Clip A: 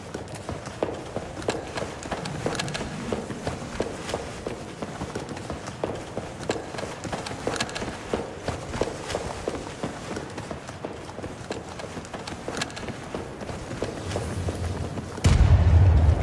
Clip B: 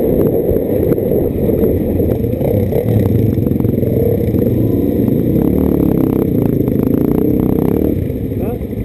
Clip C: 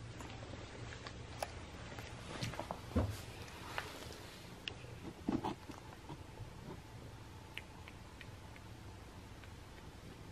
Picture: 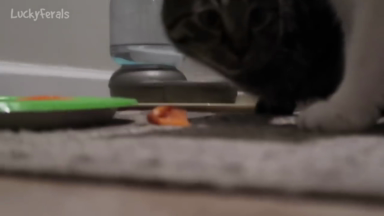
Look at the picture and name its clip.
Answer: C